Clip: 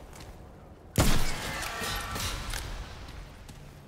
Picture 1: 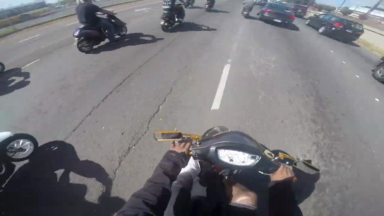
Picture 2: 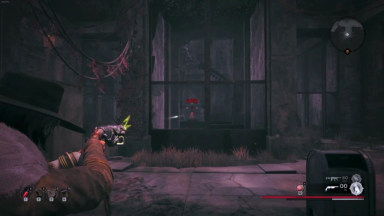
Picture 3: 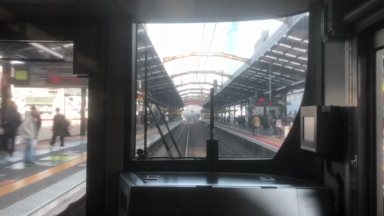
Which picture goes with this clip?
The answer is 2